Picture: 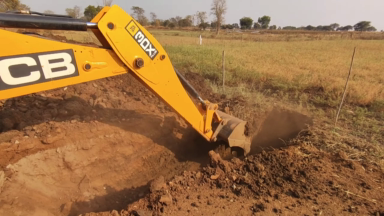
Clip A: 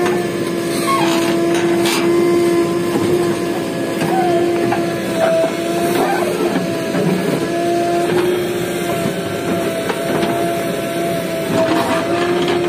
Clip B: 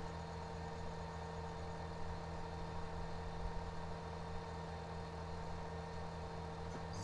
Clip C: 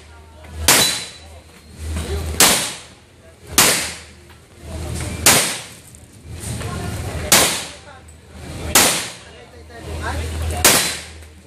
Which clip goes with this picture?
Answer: A